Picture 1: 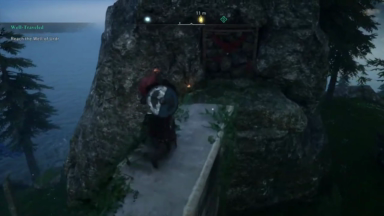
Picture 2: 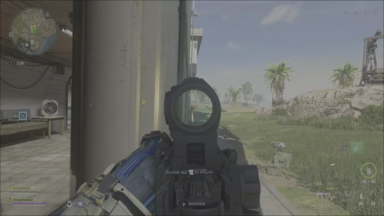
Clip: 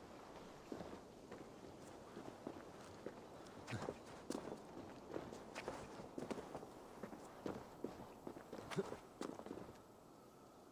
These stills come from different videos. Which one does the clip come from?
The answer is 1